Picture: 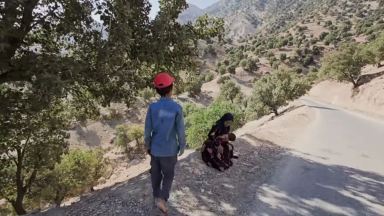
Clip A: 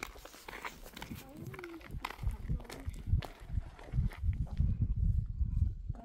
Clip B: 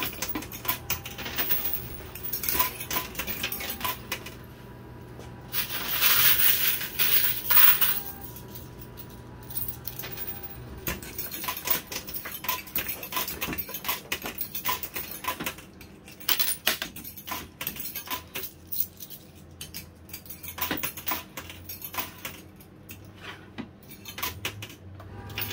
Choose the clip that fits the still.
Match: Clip A